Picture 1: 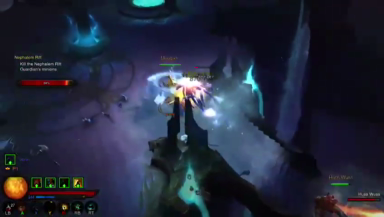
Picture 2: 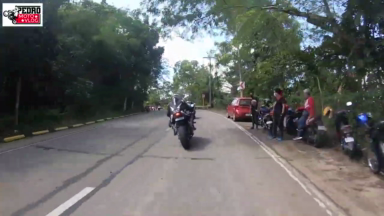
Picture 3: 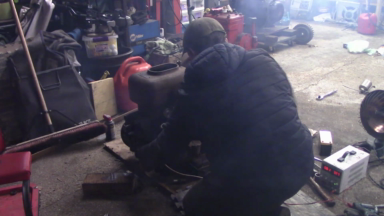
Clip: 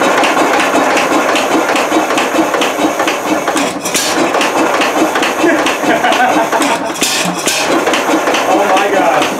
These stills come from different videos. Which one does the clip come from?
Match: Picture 3